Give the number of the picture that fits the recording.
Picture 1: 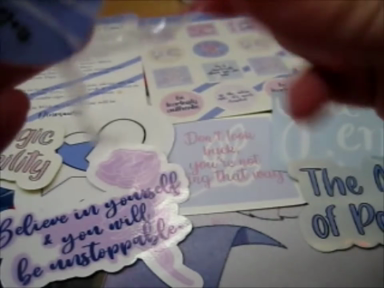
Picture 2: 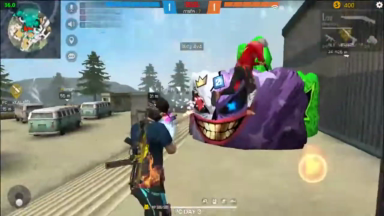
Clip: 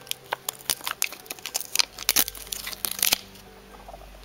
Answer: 1